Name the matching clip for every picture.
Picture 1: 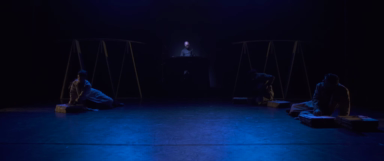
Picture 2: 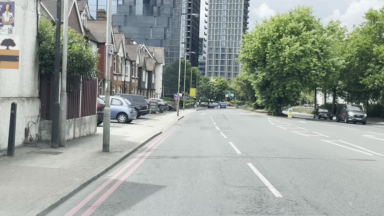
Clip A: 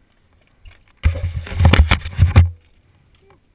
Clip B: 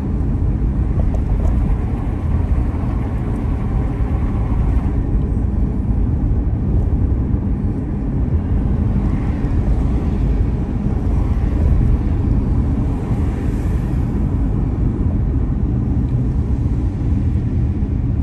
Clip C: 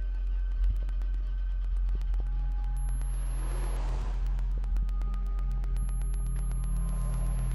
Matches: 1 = C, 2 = B